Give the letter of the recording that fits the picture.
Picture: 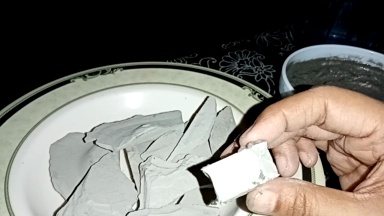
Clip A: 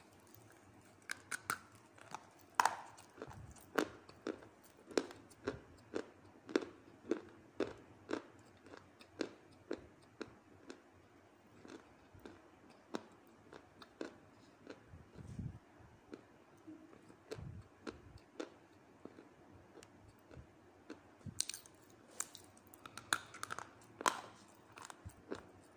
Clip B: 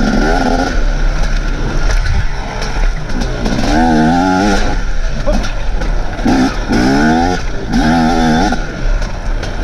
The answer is A